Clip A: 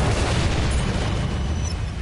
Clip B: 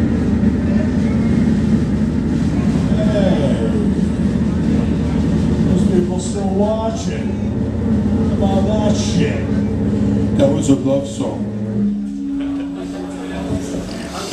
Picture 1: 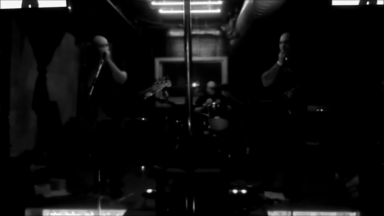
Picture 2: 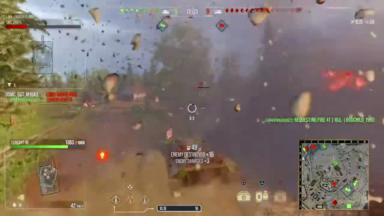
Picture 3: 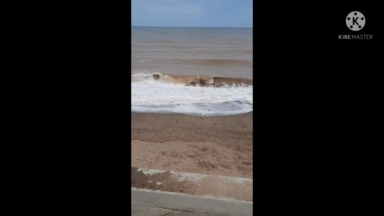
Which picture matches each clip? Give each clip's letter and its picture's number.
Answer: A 2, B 1